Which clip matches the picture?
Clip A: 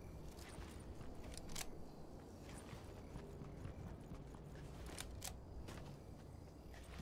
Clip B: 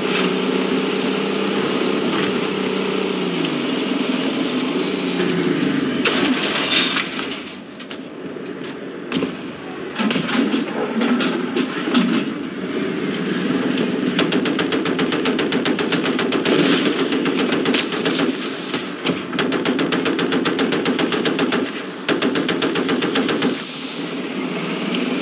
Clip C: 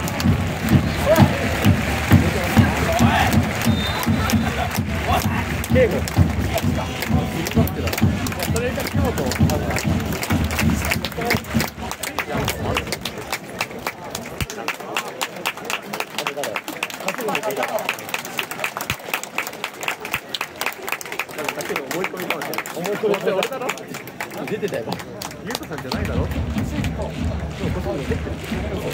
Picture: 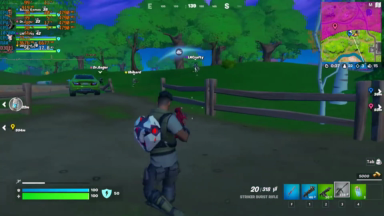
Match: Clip A